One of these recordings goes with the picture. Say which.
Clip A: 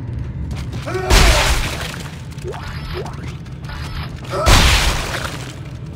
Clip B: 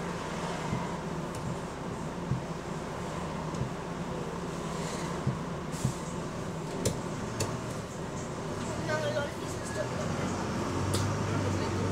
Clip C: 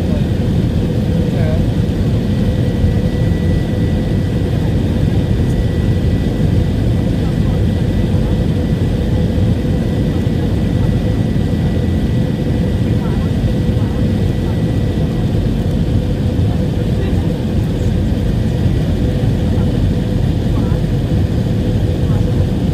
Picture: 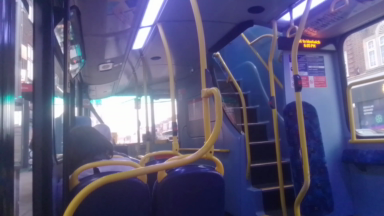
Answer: B